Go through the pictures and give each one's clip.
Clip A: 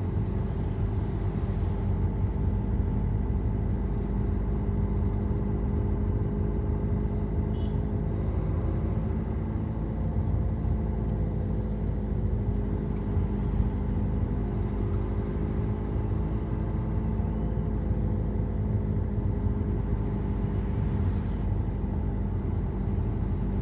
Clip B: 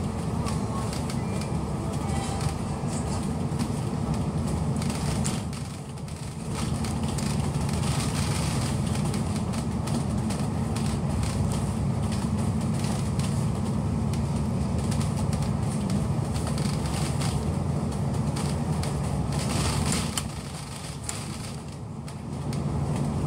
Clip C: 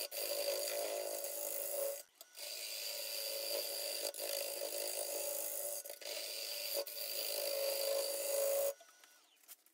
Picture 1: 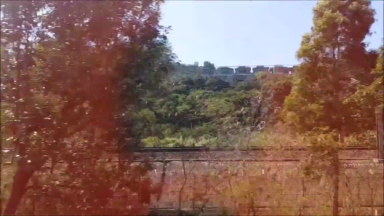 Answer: B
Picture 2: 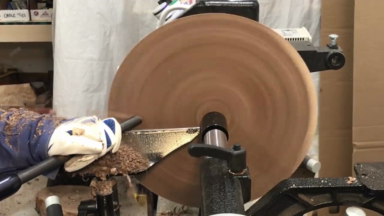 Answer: C